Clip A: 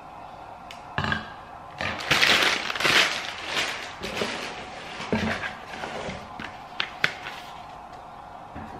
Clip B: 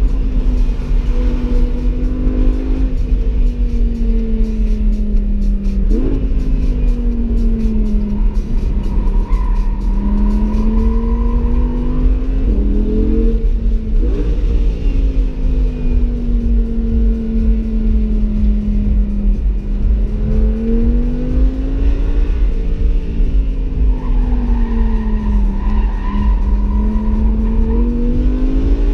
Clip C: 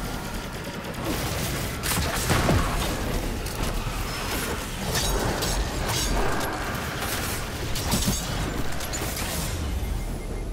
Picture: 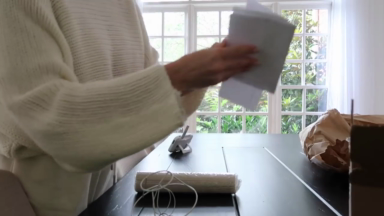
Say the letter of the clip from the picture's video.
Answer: A